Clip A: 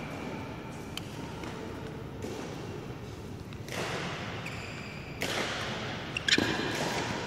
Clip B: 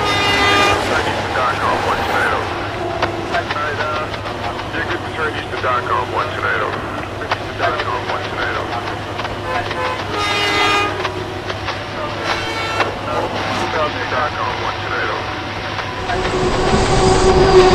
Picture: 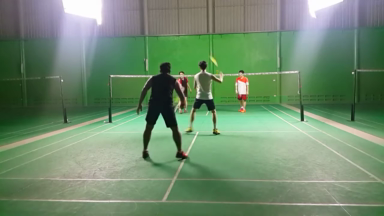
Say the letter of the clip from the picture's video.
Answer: A